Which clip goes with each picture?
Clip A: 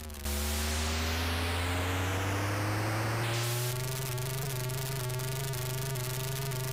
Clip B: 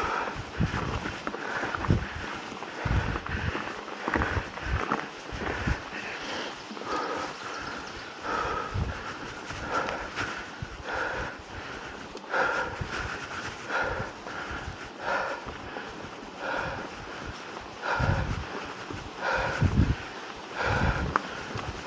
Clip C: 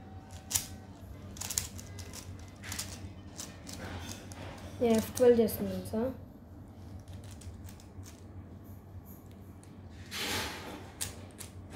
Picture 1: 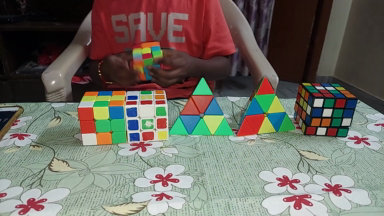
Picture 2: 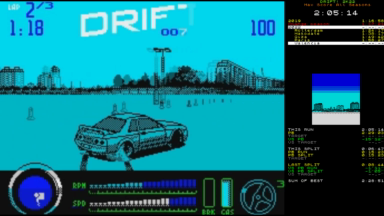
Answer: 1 C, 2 A